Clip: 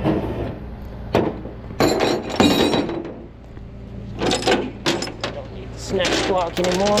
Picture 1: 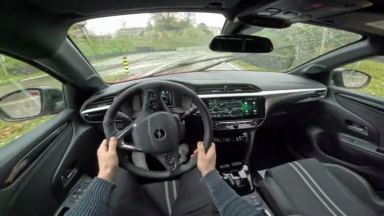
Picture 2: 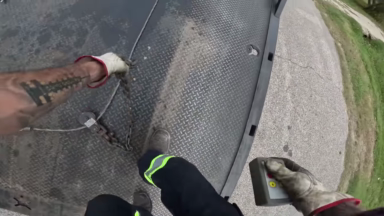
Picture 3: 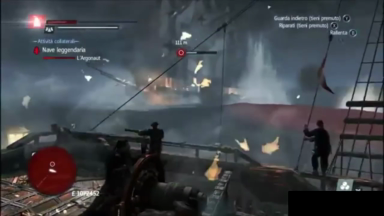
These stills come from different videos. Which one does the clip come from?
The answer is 2